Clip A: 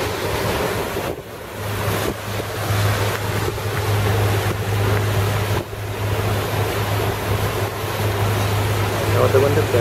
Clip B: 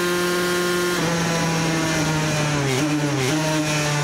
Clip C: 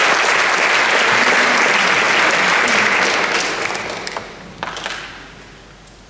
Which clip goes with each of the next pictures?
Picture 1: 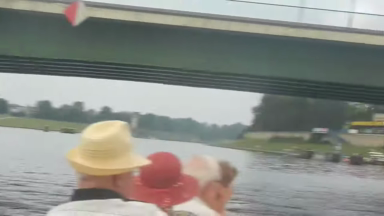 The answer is A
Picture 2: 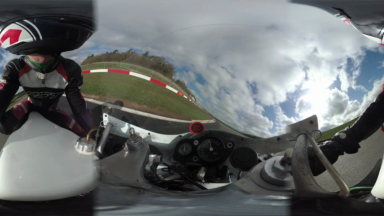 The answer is B